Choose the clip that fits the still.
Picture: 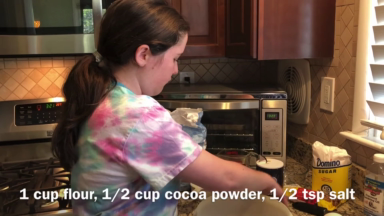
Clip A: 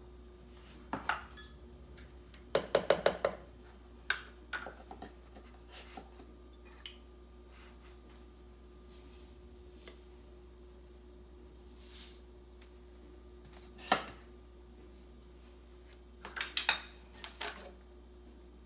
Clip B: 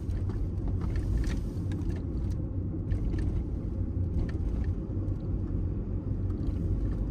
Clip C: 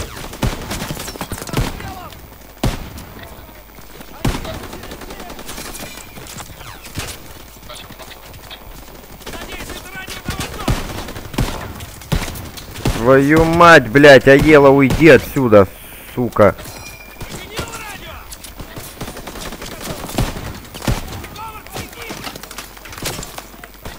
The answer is A